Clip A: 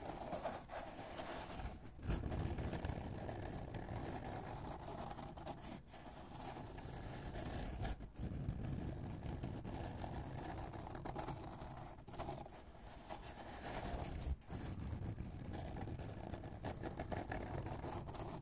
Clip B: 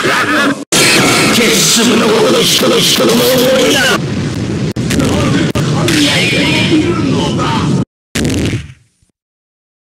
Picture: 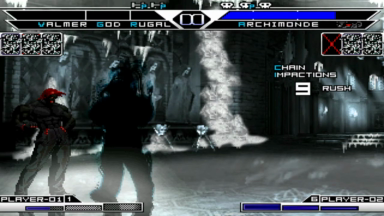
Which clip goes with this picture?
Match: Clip B